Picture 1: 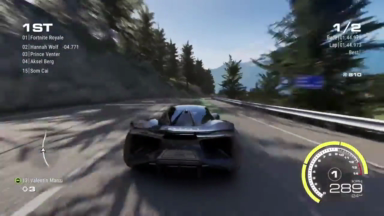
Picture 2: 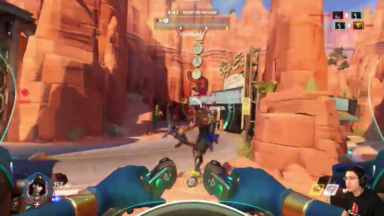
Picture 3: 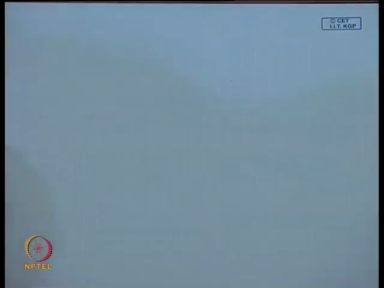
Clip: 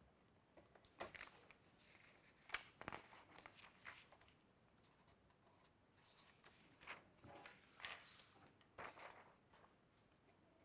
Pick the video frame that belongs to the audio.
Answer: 3